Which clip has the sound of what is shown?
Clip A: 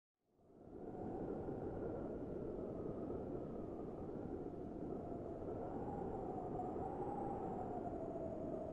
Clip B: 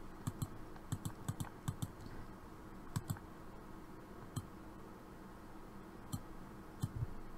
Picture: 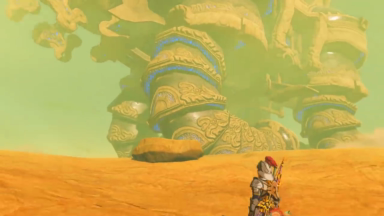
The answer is A